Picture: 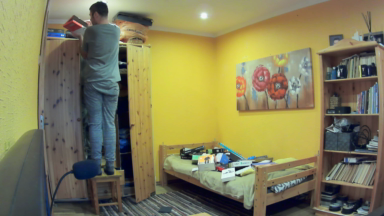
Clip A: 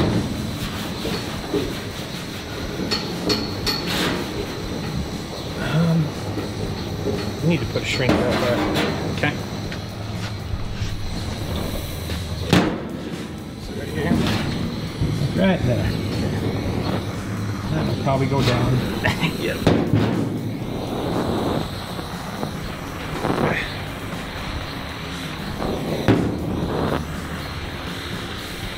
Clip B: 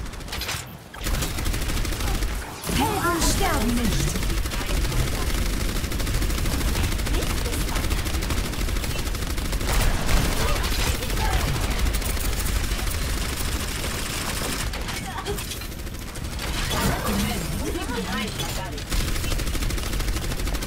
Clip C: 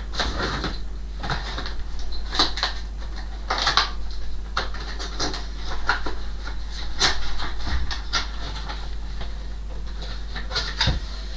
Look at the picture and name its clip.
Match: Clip C